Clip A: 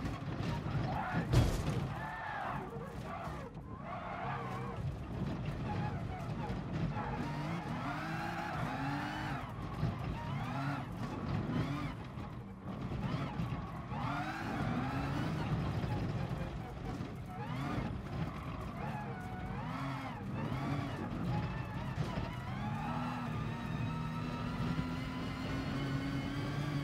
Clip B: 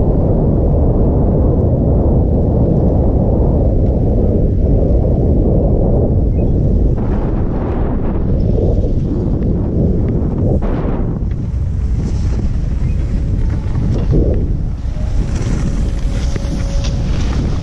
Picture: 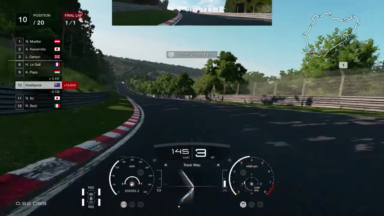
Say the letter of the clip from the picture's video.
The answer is A